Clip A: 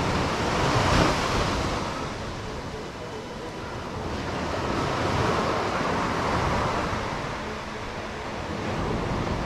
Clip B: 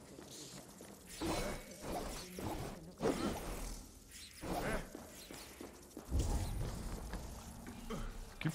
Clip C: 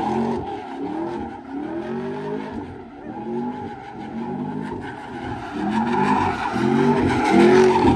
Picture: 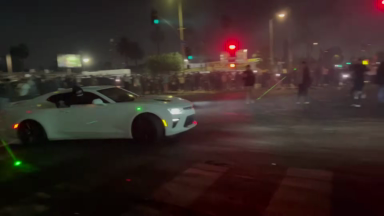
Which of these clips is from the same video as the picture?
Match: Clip C